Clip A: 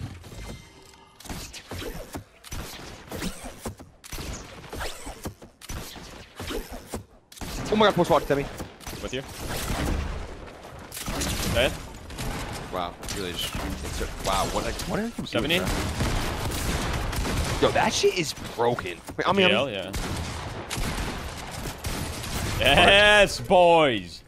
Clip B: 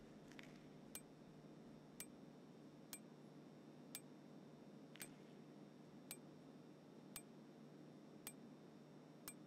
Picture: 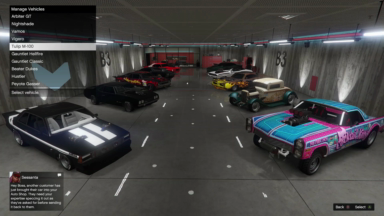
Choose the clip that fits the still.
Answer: B